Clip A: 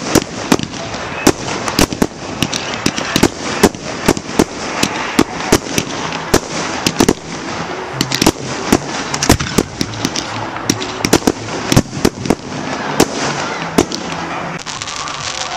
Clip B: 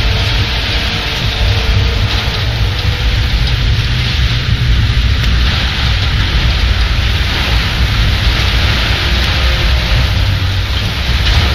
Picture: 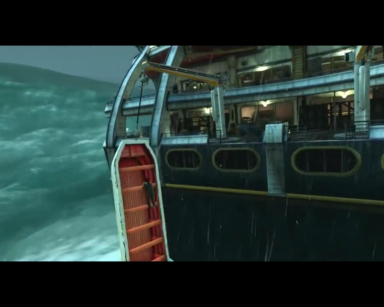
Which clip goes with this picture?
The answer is B